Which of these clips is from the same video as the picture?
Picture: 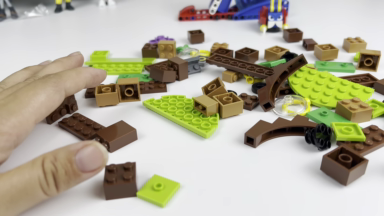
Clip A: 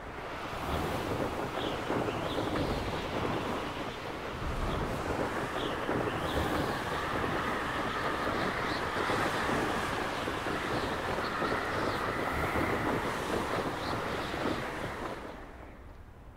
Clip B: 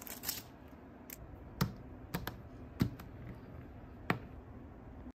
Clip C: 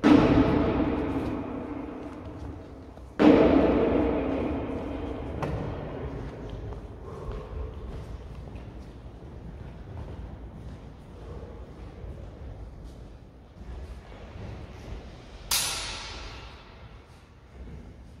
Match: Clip B